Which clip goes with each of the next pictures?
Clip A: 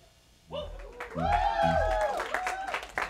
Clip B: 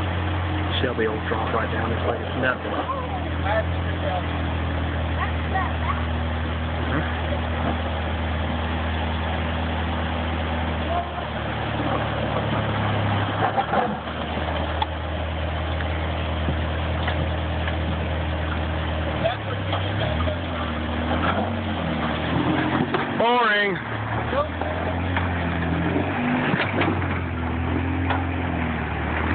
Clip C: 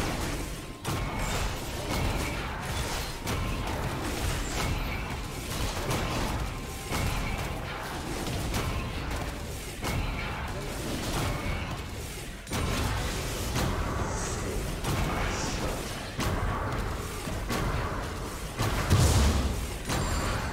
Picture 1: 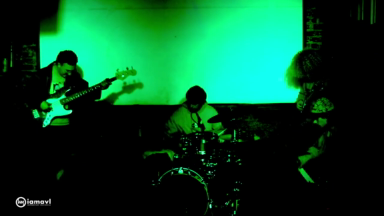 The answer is A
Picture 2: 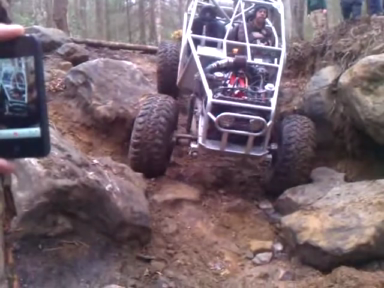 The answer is B